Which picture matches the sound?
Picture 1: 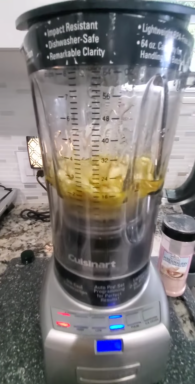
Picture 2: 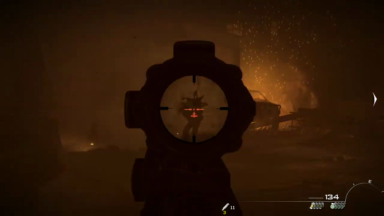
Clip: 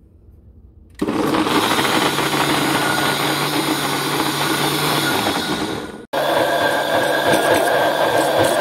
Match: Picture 1